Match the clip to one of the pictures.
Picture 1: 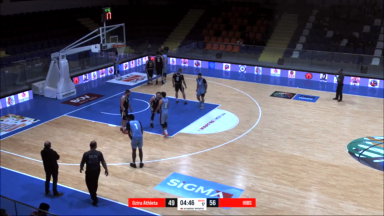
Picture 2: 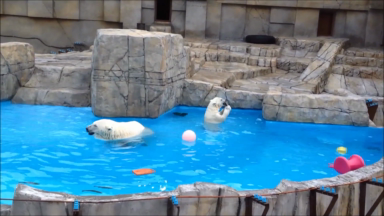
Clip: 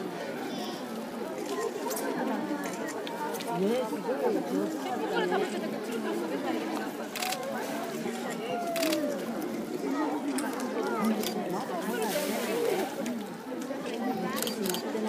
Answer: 2